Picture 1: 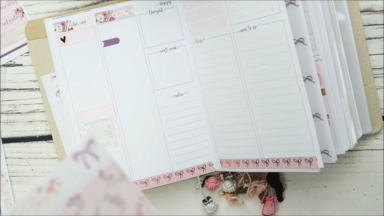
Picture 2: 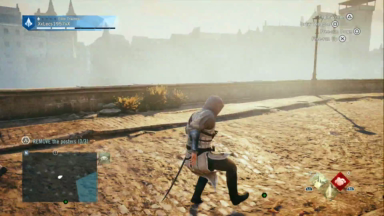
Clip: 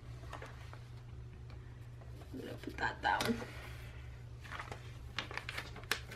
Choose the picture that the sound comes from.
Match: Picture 1